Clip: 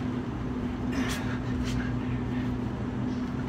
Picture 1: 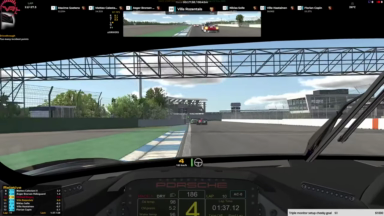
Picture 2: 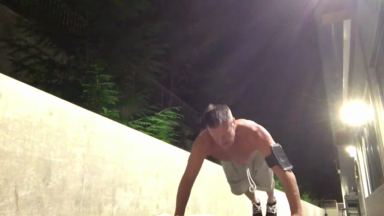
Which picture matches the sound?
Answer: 2